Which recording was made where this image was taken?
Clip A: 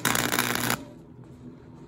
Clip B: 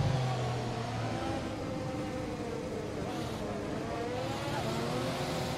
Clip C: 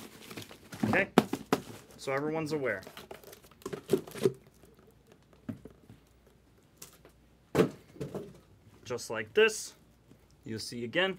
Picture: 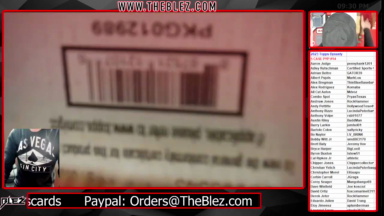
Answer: C